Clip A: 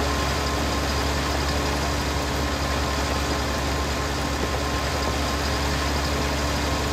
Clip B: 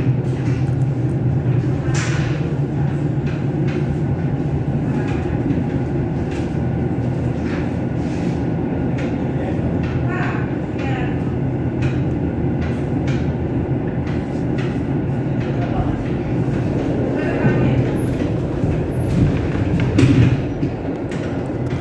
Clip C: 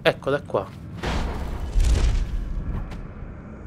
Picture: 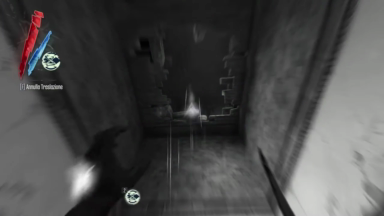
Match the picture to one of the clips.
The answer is C